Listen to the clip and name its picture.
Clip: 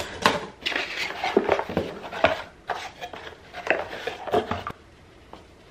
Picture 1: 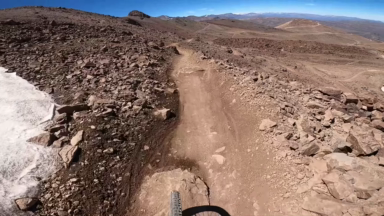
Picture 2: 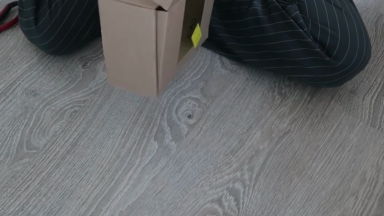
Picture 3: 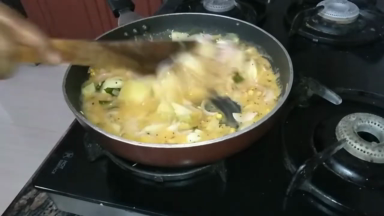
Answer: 2